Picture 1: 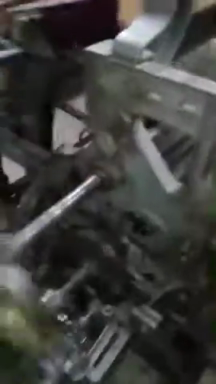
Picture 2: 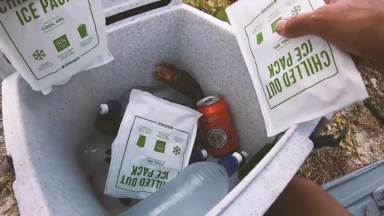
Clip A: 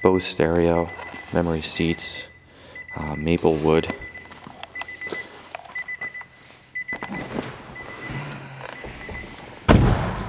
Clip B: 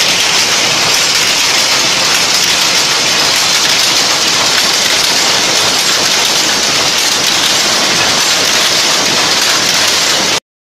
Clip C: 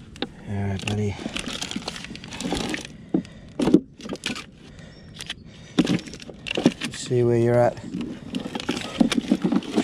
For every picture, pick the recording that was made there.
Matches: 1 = B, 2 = C